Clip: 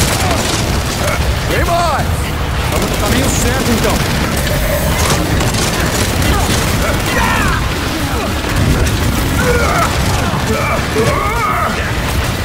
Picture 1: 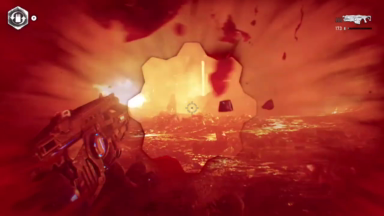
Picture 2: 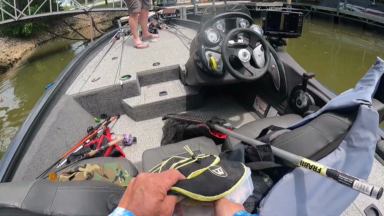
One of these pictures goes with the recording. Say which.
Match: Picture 1